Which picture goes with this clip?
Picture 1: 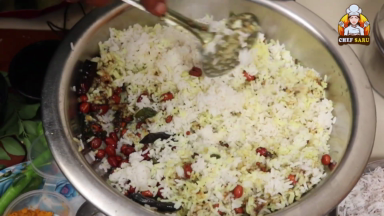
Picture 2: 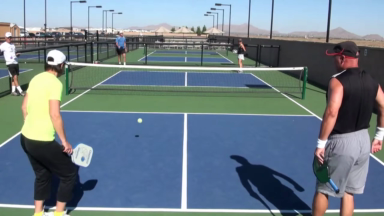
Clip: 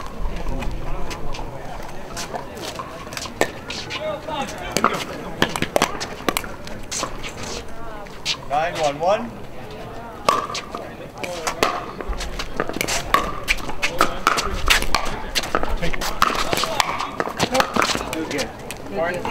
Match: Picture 2